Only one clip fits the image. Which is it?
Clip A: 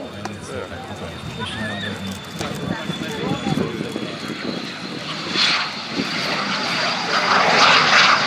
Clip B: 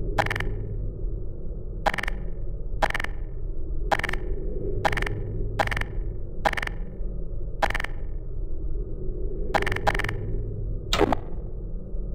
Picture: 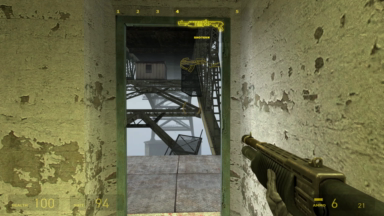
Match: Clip B